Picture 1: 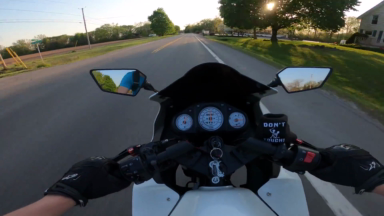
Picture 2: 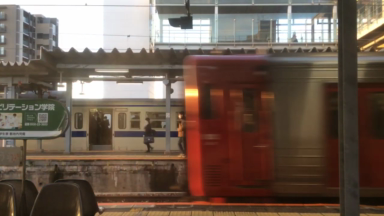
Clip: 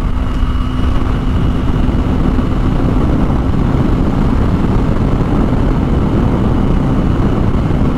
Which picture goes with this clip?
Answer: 1